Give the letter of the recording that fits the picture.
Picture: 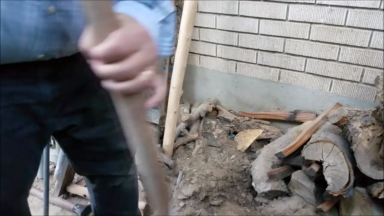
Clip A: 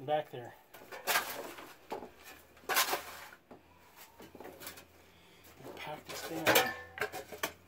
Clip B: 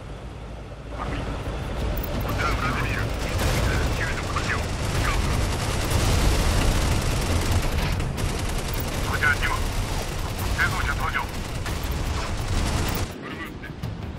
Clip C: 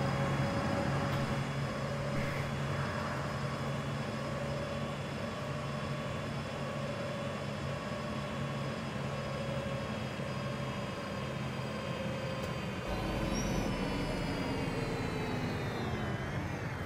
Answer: A